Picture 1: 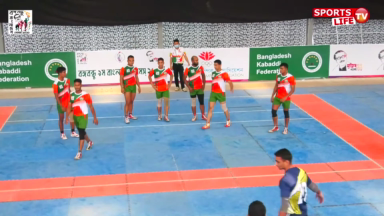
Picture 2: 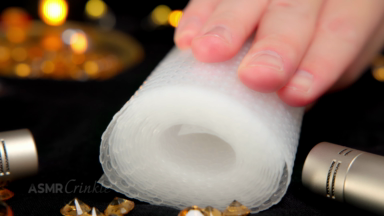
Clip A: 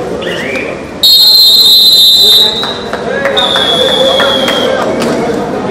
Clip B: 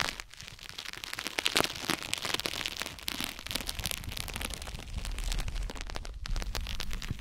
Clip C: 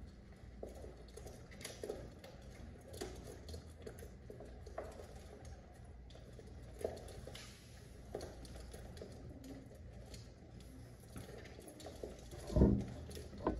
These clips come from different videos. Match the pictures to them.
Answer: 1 A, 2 B